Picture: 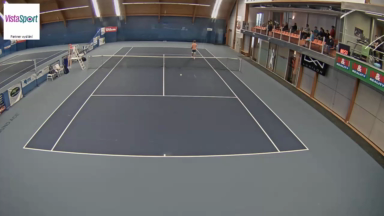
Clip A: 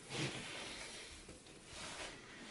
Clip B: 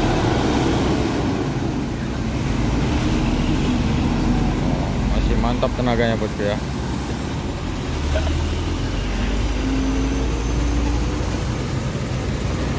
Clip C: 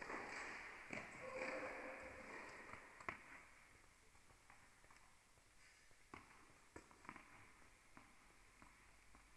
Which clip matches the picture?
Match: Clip C